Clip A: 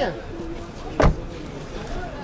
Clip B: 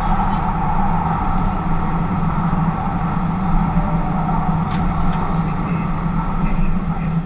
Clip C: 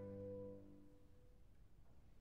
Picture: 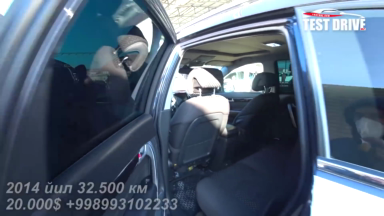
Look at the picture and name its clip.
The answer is A